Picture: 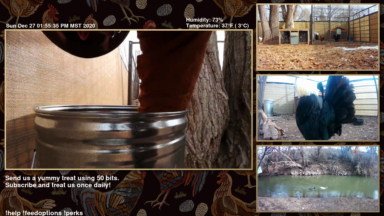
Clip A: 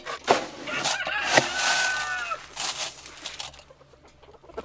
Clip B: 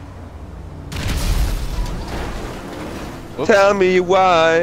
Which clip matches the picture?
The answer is A